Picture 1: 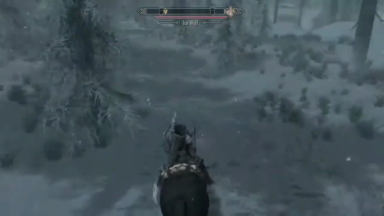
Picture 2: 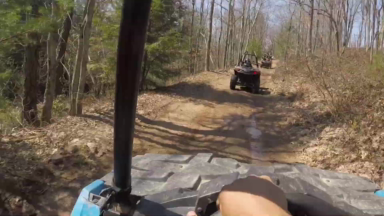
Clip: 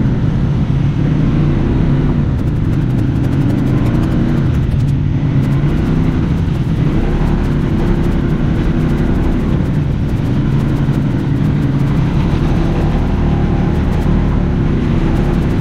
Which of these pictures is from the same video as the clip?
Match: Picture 2